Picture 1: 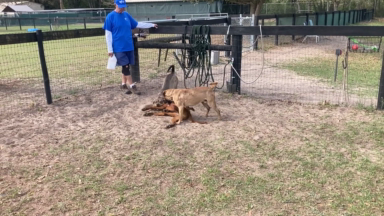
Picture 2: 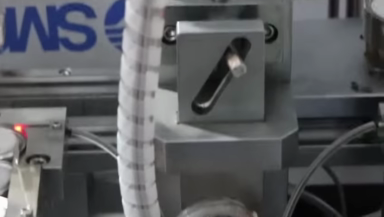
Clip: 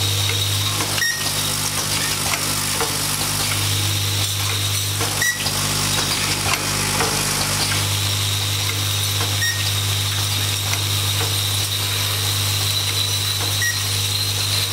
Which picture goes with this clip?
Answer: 2